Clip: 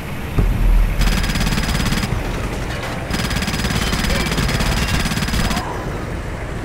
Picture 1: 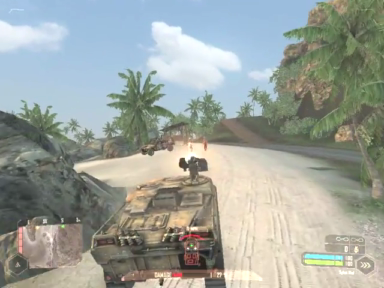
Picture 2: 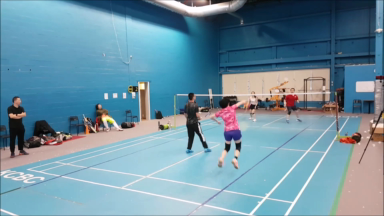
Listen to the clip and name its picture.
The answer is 1